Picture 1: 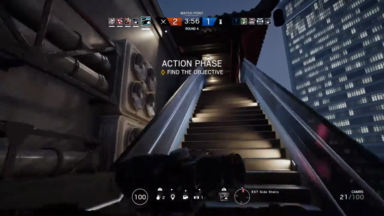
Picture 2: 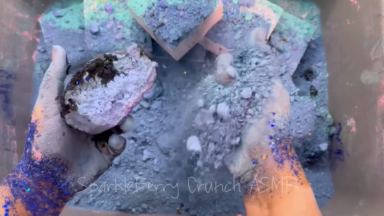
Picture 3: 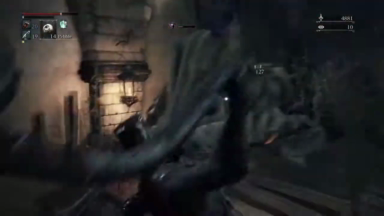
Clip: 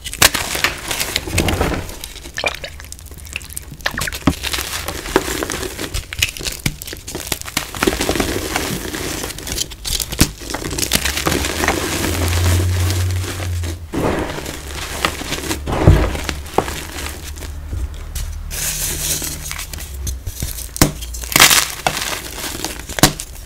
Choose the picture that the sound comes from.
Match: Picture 2